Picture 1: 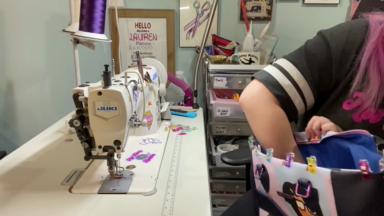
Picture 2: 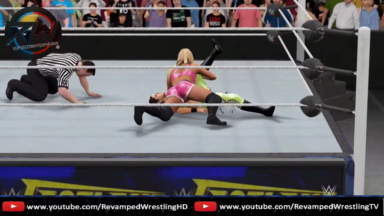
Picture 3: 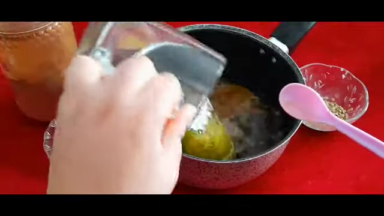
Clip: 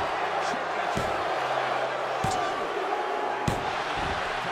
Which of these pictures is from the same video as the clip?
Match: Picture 2